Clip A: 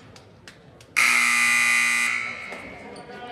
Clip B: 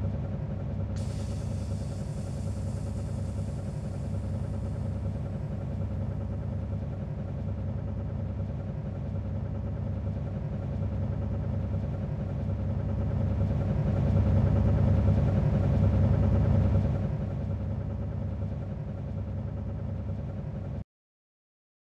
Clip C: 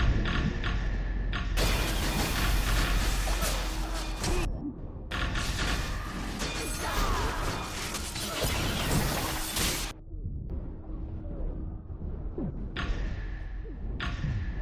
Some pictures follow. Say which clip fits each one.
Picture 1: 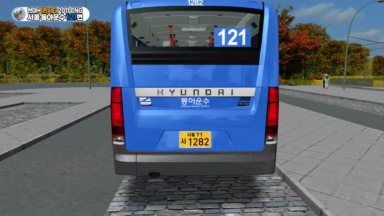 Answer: B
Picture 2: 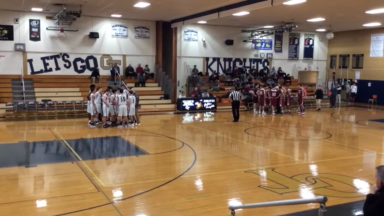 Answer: A